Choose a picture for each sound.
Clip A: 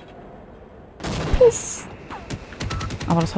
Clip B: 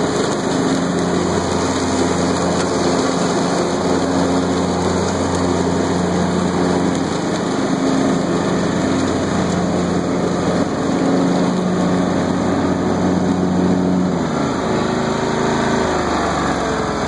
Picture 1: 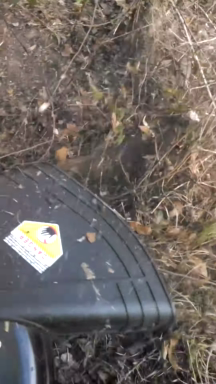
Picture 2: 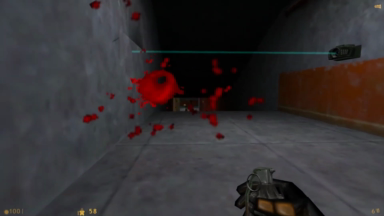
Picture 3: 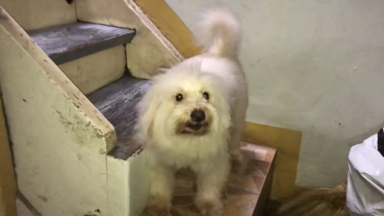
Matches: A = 2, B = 1